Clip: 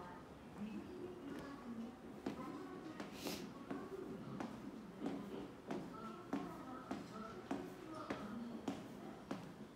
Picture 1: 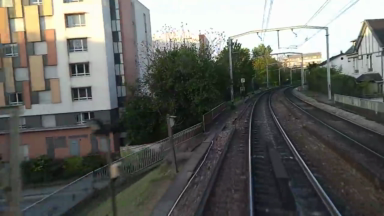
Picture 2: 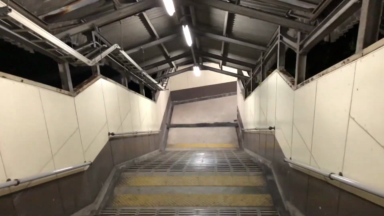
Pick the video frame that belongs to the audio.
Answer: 2